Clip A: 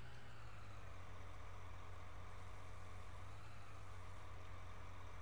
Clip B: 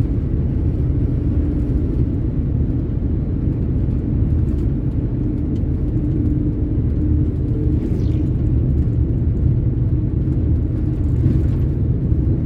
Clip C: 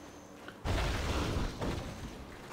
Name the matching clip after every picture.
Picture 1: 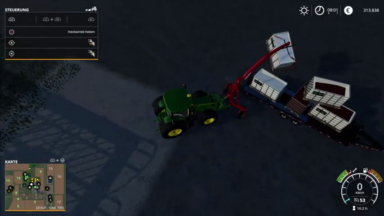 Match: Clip A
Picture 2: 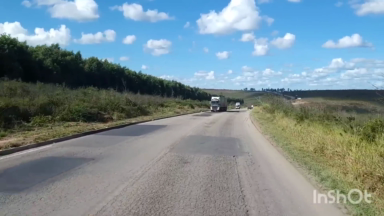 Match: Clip B